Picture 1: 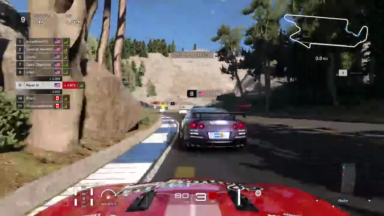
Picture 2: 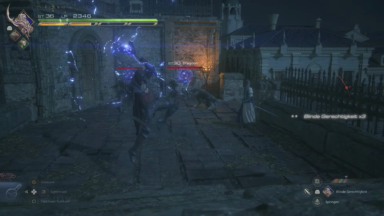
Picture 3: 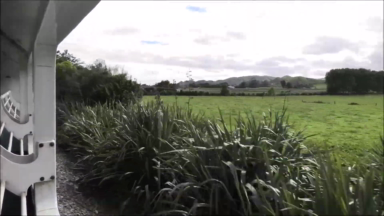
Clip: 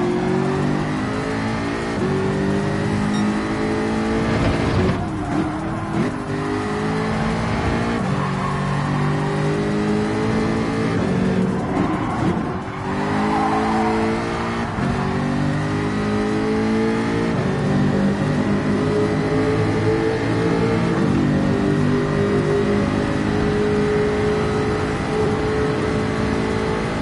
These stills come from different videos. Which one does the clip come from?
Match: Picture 1